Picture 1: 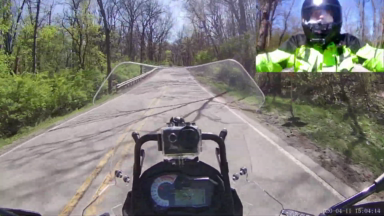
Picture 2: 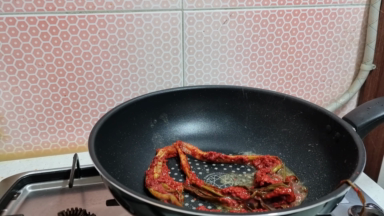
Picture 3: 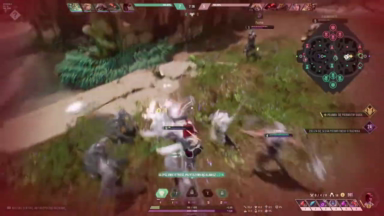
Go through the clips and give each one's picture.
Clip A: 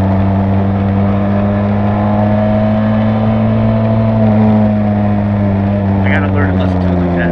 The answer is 1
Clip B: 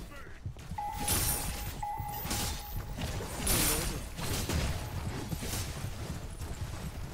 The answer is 3